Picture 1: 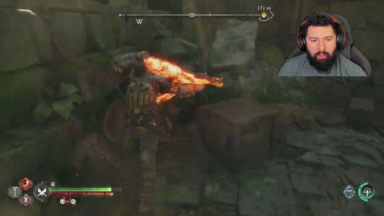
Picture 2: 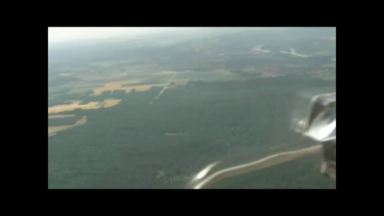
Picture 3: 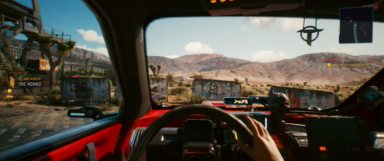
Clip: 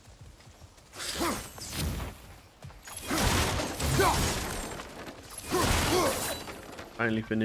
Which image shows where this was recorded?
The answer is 1